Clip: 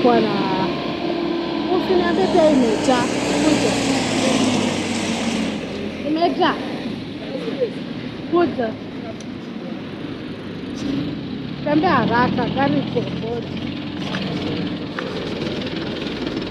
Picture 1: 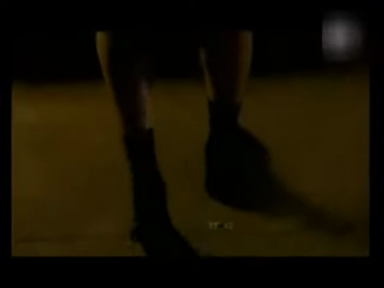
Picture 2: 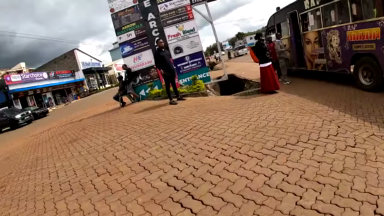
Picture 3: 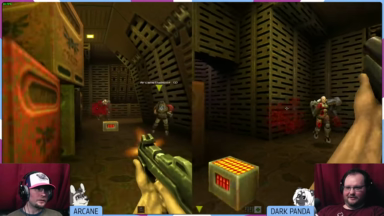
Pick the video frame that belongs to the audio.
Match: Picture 2